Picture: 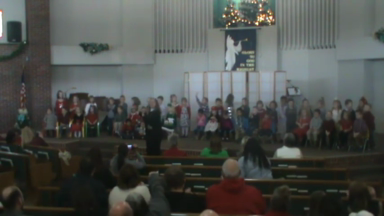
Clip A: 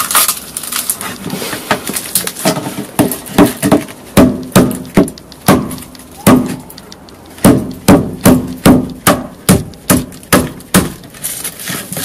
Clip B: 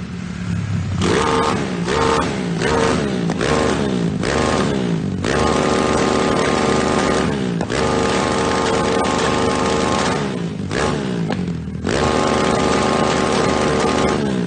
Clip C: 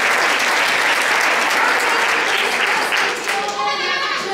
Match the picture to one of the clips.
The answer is C